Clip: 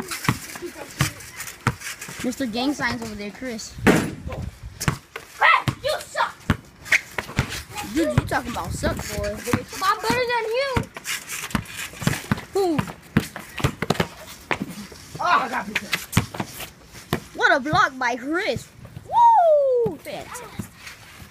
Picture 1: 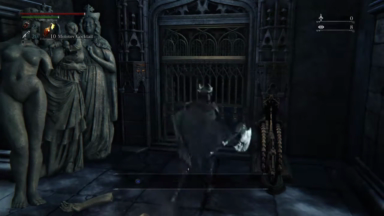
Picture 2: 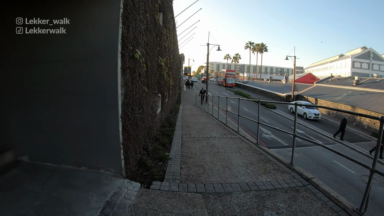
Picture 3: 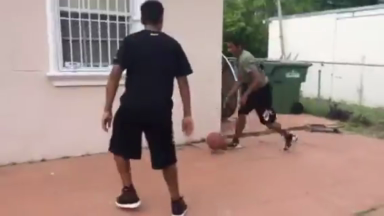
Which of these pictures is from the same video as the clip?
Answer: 3